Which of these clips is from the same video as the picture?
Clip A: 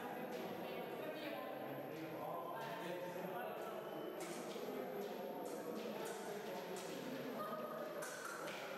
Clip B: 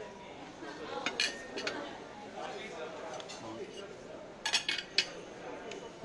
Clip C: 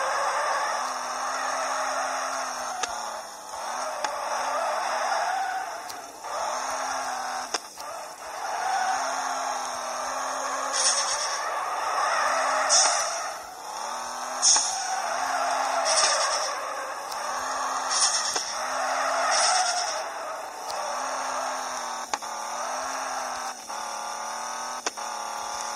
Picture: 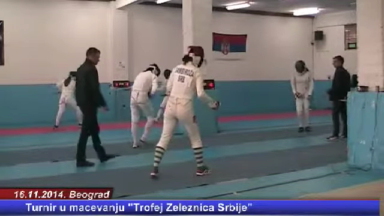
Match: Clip A